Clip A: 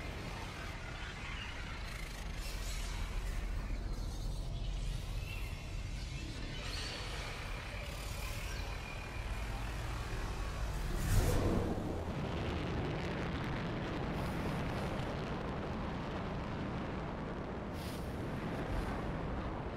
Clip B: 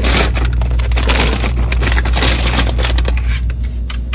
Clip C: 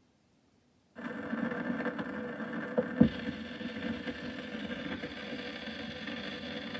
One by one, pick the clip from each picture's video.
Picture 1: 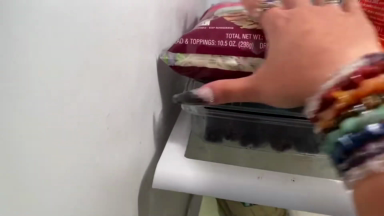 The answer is B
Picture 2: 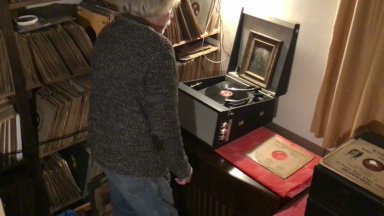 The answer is C